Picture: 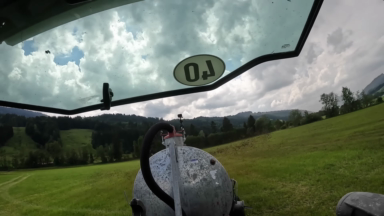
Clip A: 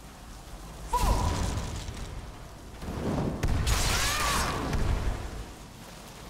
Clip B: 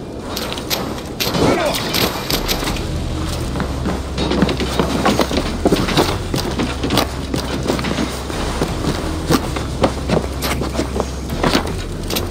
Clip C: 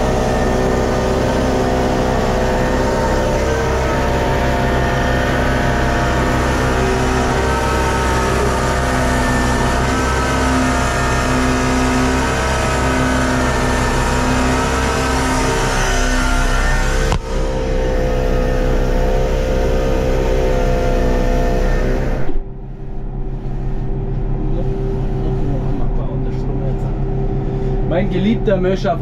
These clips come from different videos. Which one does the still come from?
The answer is C